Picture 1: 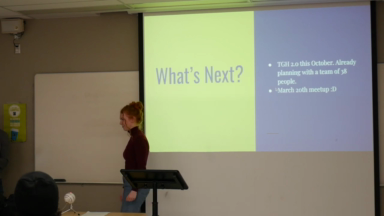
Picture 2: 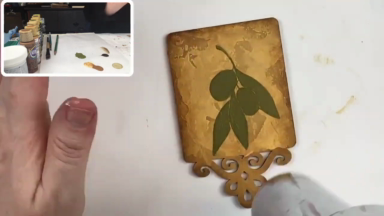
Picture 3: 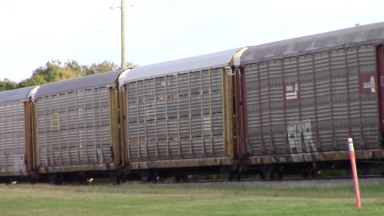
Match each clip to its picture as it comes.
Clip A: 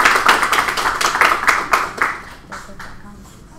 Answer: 1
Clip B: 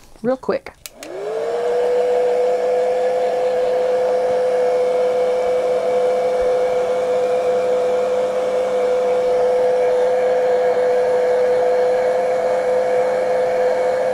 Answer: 2